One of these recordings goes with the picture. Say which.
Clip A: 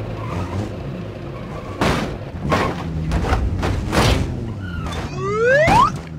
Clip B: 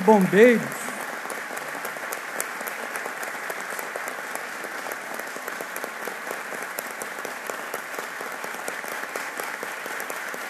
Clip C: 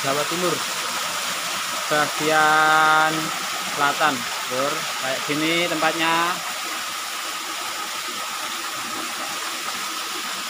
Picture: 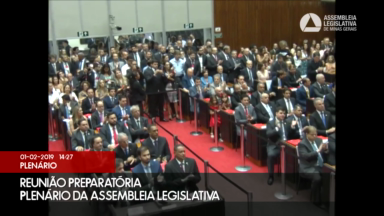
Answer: B